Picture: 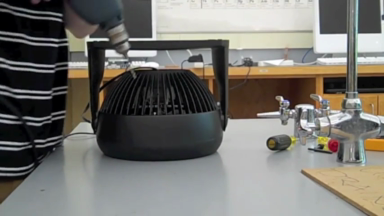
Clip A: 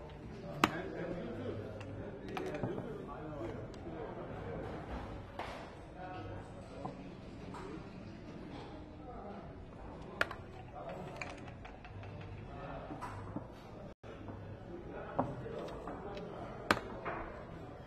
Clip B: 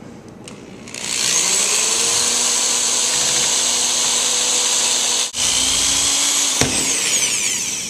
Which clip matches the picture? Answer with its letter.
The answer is B